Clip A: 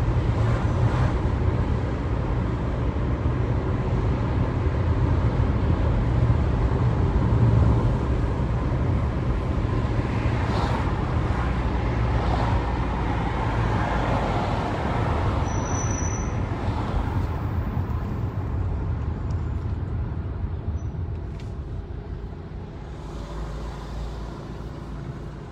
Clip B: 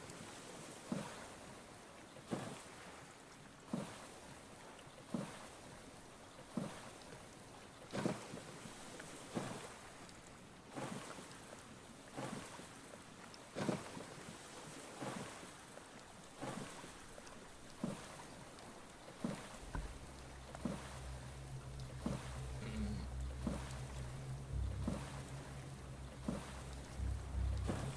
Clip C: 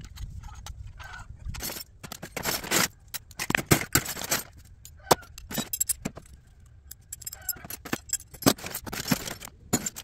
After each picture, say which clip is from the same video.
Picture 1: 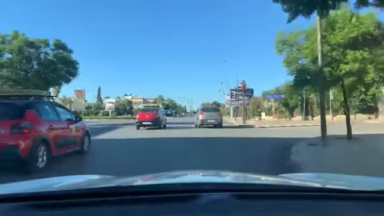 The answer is A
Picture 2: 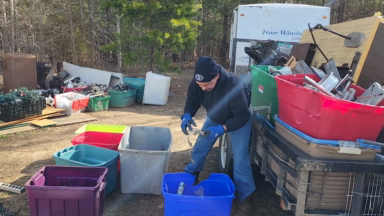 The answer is C